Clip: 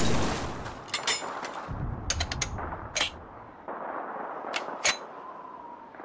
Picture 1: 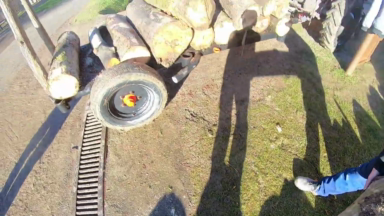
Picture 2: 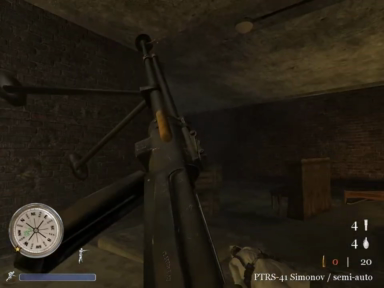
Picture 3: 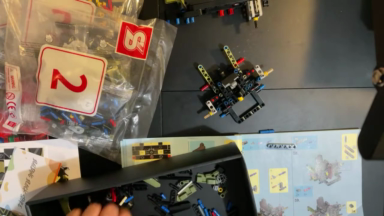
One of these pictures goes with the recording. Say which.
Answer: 2